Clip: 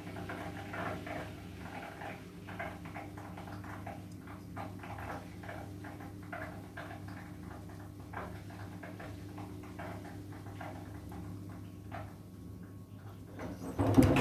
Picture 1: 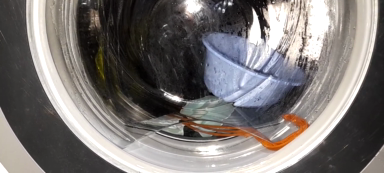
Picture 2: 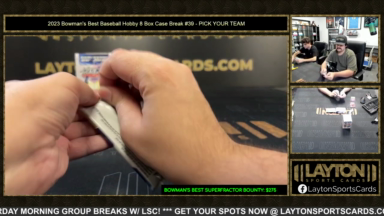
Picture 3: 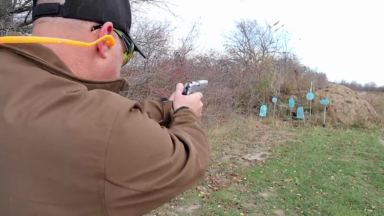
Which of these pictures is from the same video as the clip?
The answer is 1